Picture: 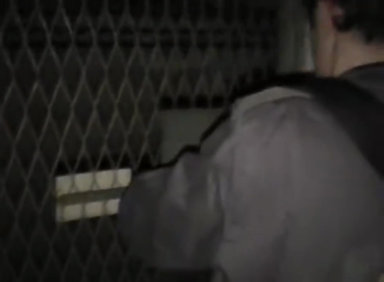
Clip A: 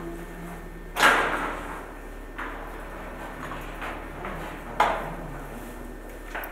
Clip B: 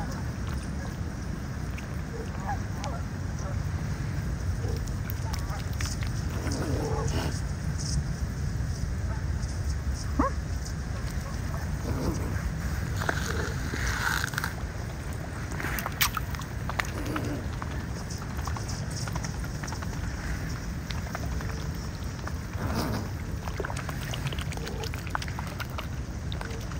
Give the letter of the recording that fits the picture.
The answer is A